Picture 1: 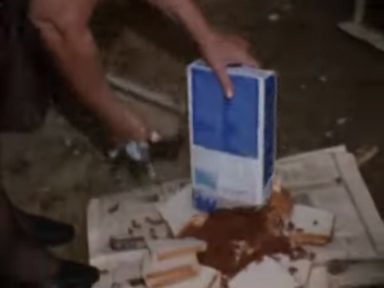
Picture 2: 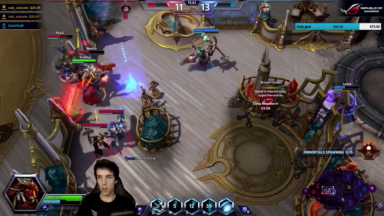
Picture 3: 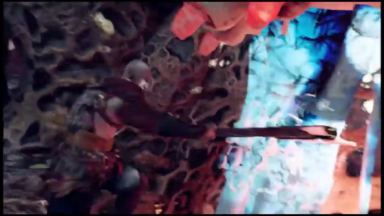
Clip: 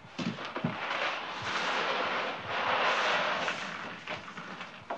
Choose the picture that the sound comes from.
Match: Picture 1